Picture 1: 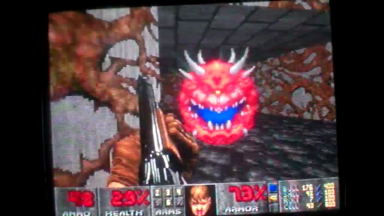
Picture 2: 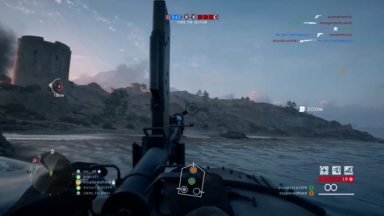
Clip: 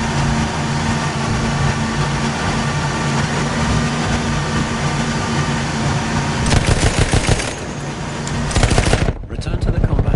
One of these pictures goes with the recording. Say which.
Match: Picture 2